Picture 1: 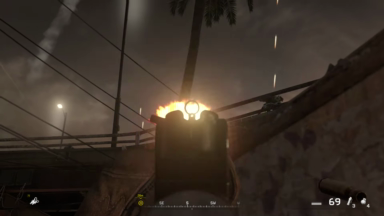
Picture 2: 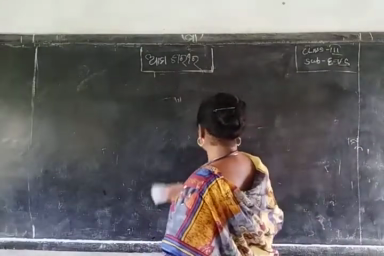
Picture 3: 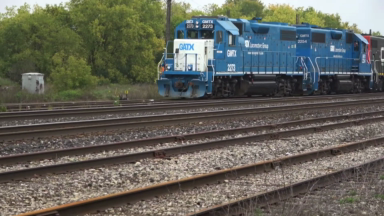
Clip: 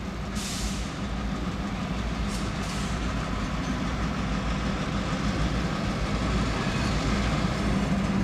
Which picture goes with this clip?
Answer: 3